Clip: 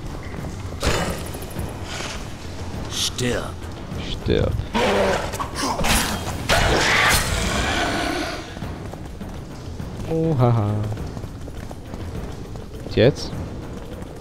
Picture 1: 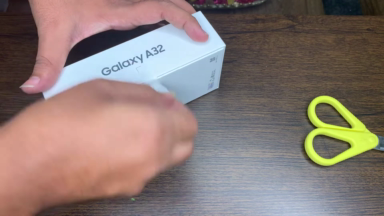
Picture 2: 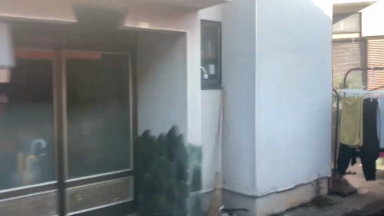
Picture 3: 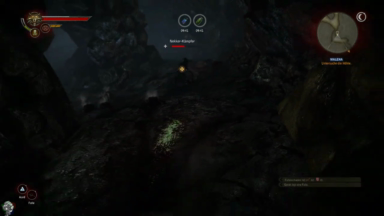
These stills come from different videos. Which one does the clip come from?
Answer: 3